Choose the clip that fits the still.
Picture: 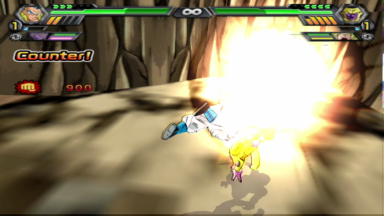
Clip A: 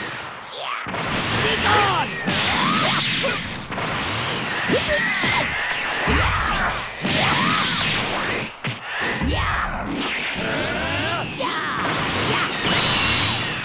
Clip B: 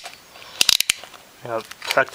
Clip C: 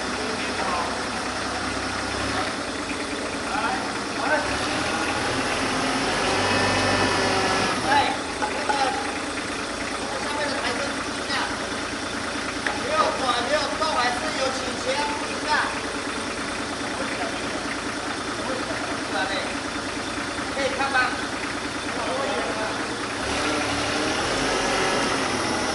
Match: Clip A